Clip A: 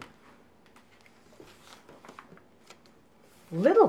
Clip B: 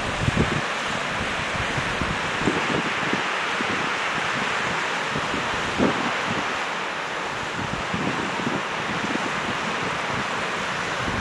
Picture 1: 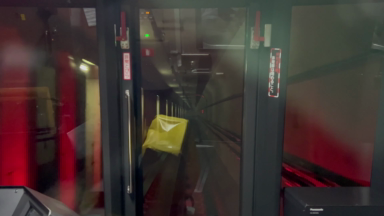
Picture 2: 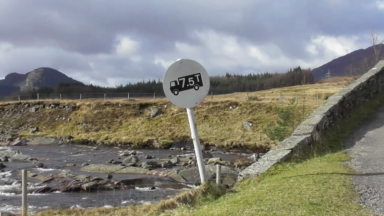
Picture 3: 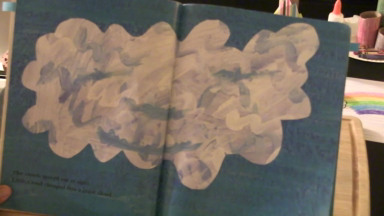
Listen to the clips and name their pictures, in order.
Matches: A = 3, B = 2